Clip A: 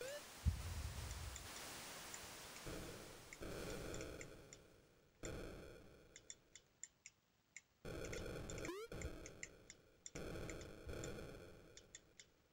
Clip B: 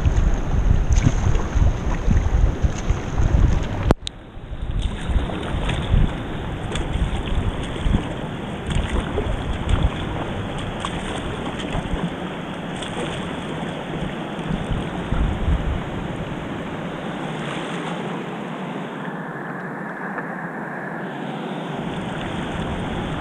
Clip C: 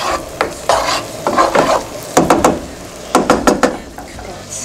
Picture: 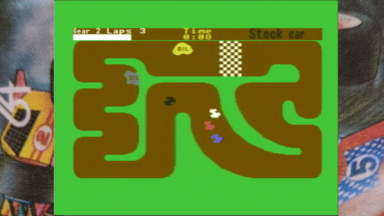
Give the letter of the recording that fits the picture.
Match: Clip A